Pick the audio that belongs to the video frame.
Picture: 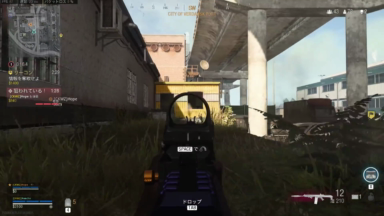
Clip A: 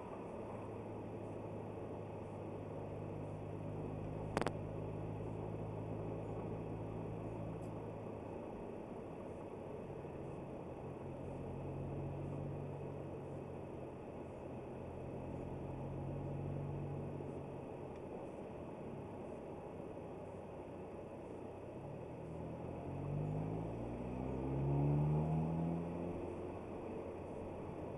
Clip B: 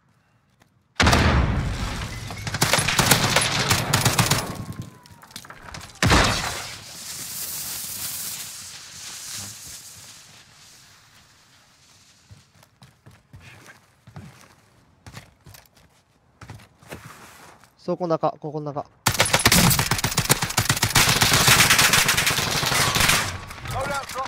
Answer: B